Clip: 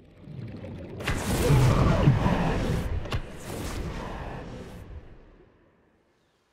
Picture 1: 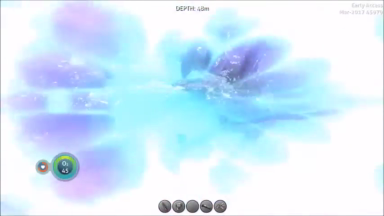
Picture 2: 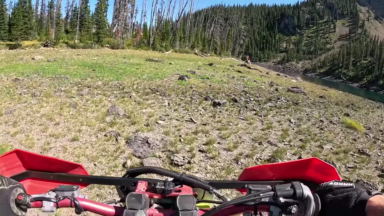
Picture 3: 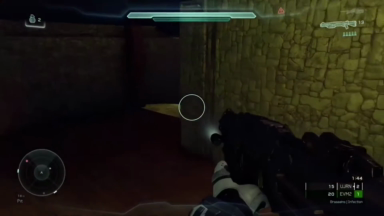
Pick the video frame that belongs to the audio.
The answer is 1